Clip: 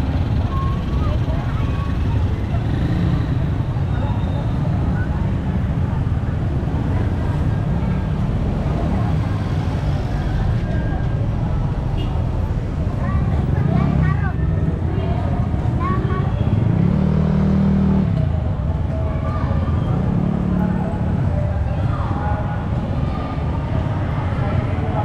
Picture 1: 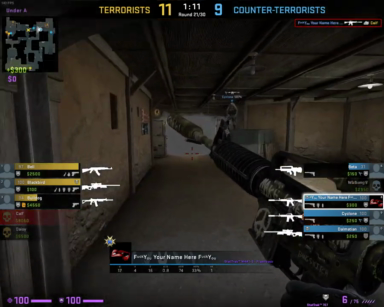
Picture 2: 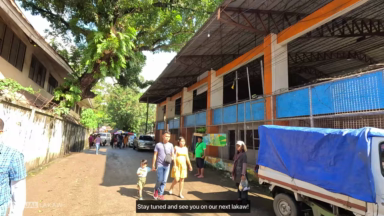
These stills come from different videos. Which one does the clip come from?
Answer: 2